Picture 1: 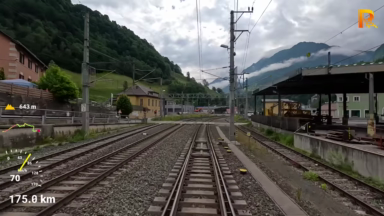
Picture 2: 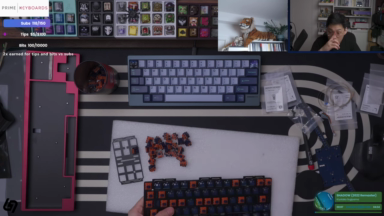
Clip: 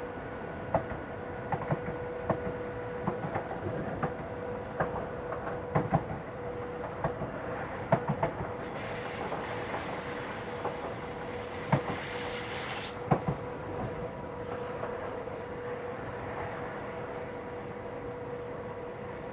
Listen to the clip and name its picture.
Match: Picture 1